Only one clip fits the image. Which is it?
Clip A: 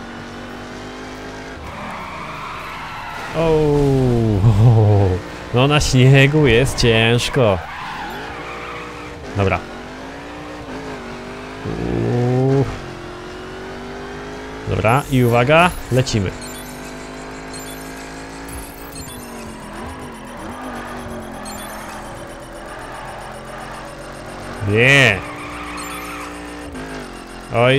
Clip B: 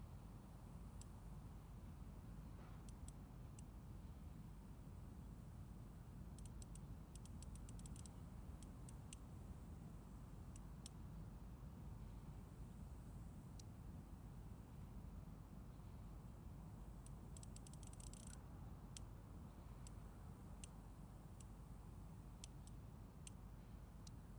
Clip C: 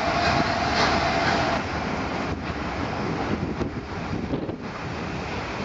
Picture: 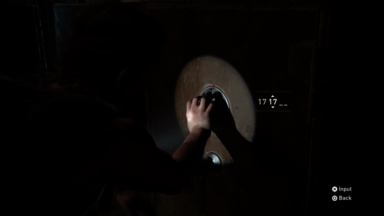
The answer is B